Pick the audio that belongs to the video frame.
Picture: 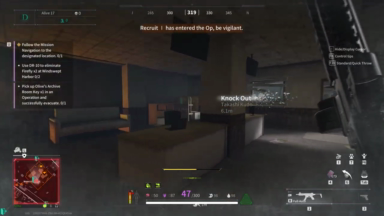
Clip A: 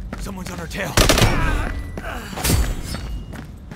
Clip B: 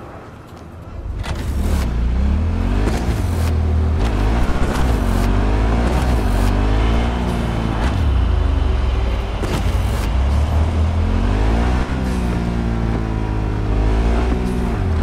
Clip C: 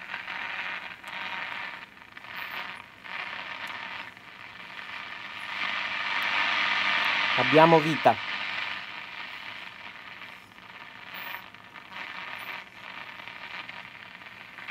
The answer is A